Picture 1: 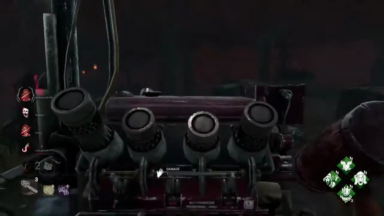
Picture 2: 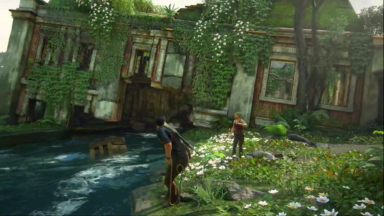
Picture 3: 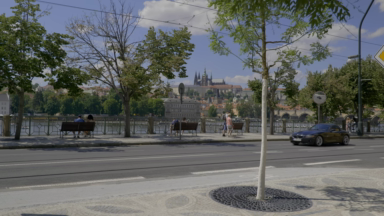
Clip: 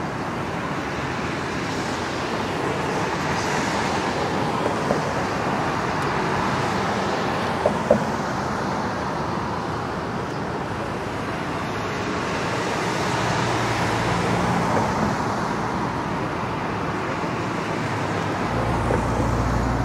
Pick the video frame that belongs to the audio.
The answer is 3